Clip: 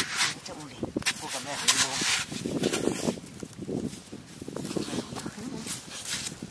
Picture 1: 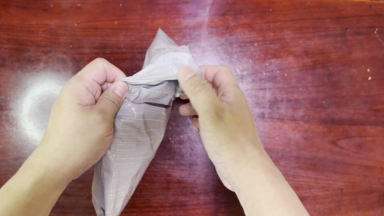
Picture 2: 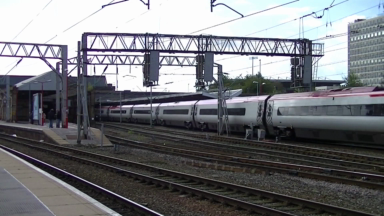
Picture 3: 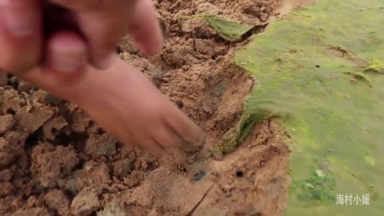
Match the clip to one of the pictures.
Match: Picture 3